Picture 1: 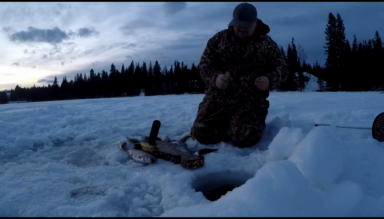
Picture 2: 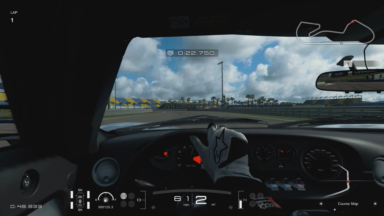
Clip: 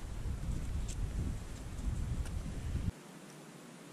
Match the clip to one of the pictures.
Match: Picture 1